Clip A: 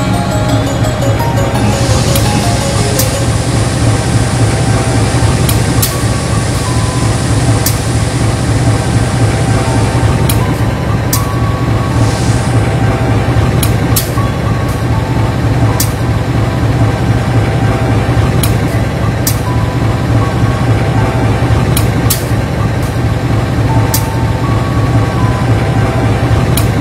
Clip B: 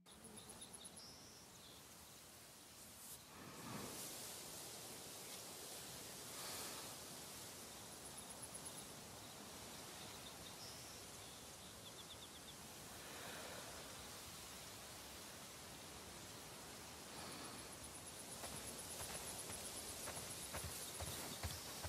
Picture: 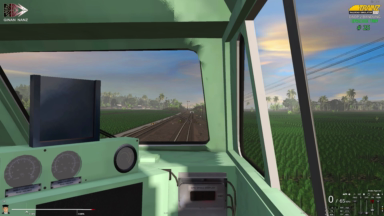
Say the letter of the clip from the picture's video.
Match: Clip A